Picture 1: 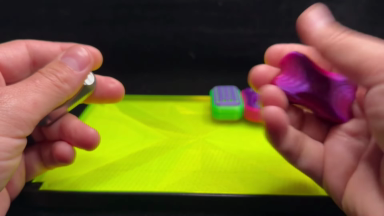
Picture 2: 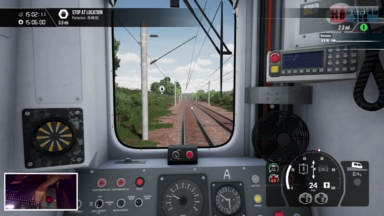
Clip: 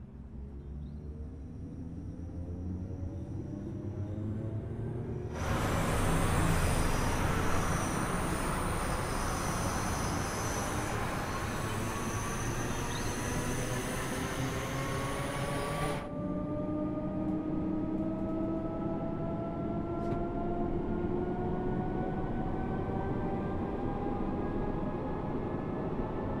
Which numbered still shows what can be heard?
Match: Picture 2